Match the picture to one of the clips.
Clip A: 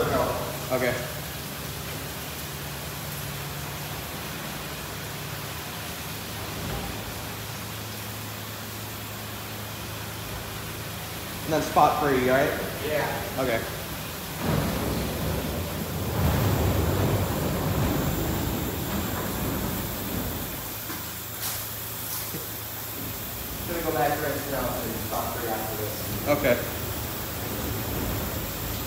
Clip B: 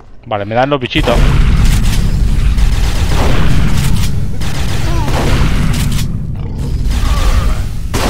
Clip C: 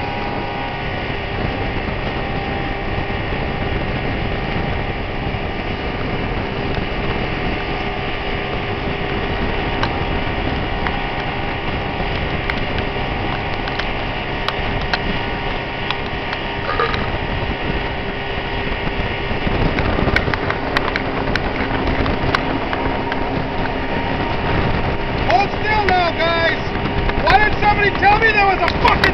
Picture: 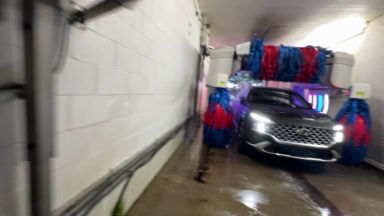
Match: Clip A